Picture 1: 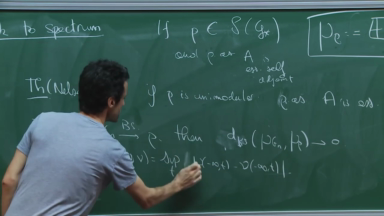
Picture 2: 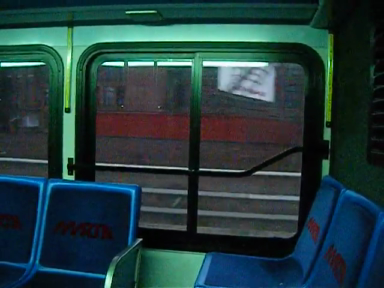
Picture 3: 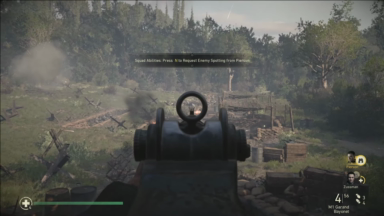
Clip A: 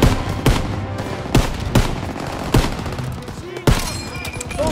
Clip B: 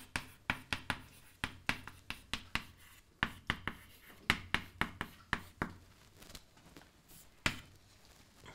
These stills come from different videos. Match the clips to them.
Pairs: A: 3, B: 1